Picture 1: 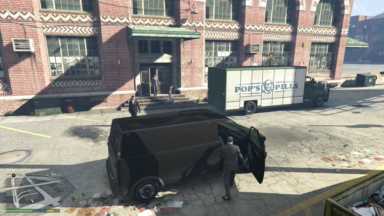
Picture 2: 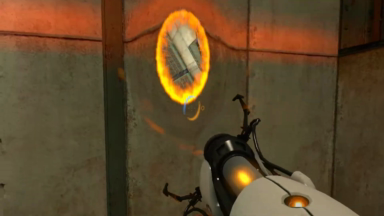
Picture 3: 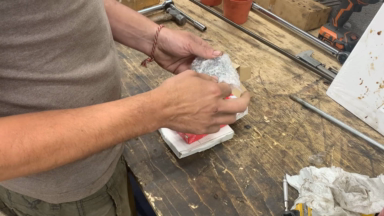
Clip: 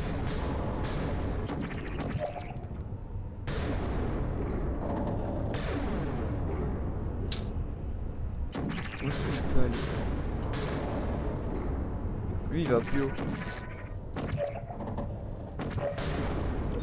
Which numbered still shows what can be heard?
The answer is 2